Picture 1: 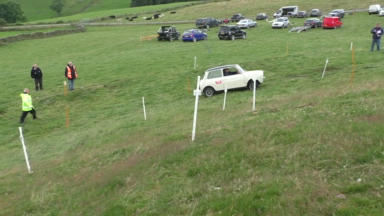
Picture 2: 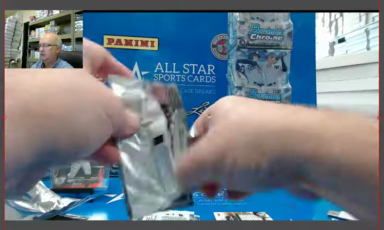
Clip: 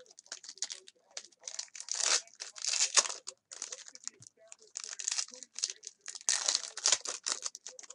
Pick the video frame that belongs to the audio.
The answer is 2